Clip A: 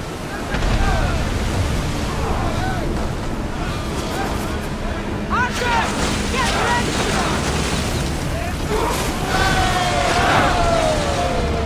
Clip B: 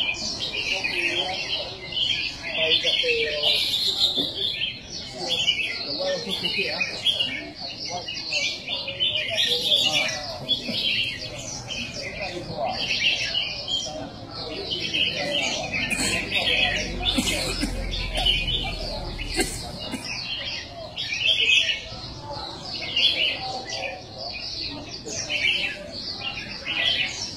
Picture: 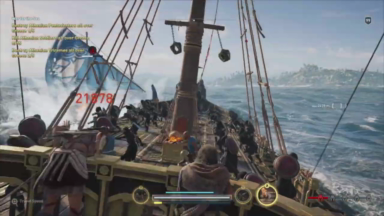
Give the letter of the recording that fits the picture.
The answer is A